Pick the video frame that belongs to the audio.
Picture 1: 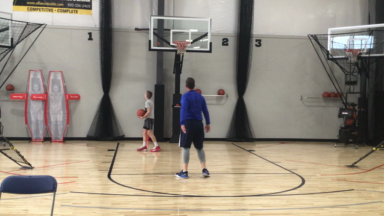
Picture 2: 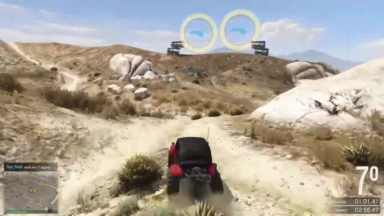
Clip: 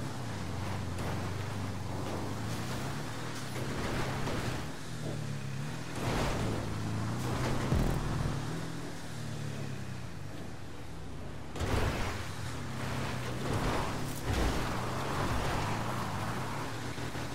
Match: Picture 2